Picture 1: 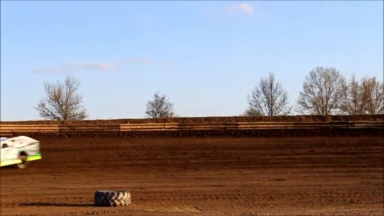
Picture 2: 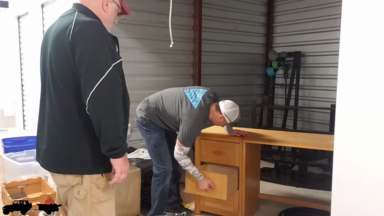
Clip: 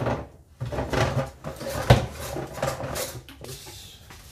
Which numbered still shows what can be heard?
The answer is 2